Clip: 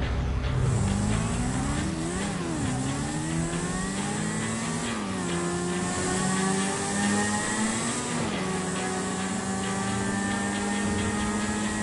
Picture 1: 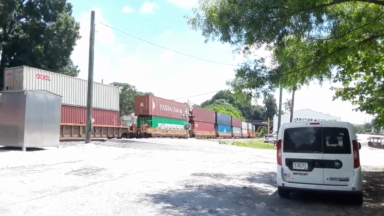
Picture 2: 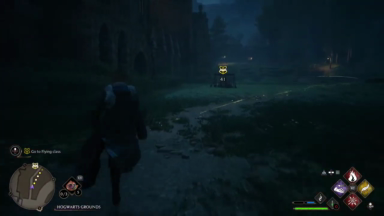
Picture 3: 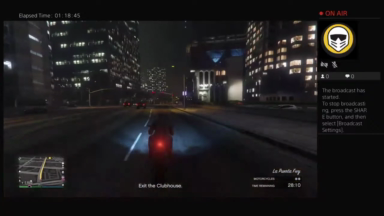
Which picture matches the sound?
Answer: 3